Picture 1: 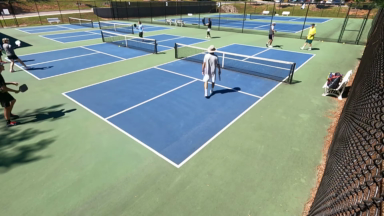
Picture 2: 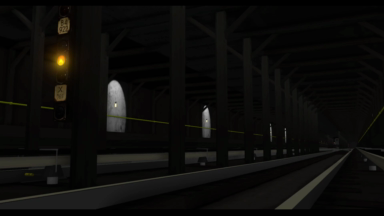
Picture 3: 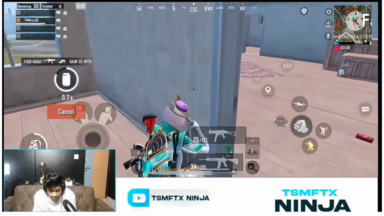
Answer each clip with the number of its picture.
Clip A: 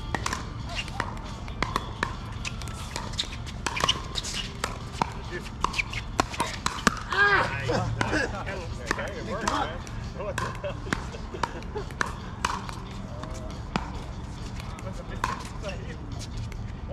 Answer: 1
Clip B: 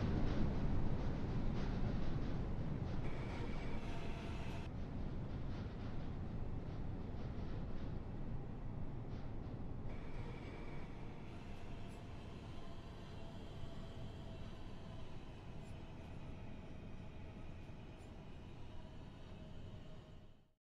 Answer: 2